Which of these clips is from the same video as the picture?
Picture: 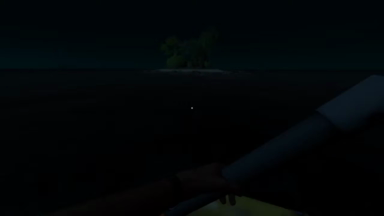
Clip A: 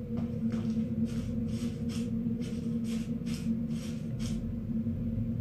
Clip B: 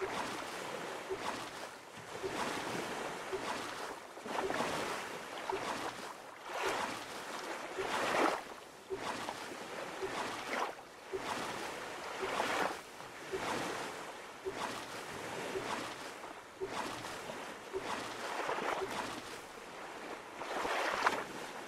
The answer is B